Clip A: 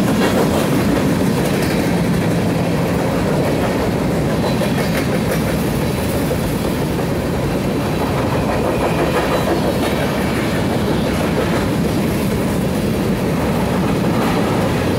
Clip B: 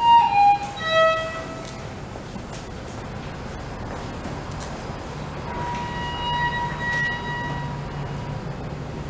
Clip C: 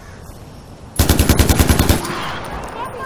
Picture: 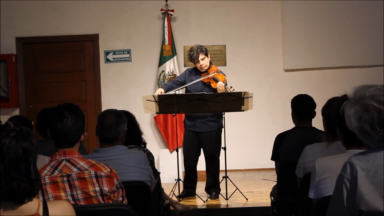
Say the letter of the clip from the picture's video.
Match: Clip B